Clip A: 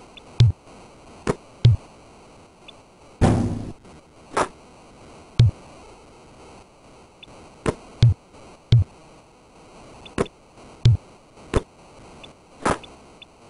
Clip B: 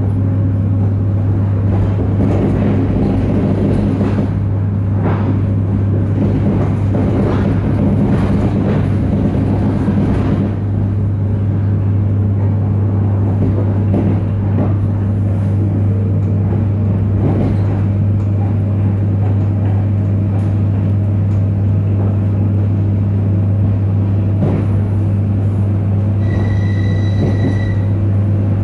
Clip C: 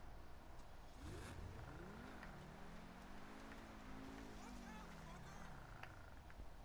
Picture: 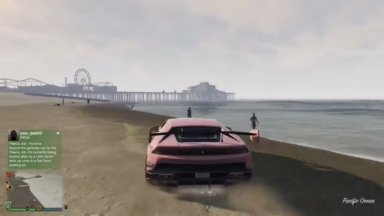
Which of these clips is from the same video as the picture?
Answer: C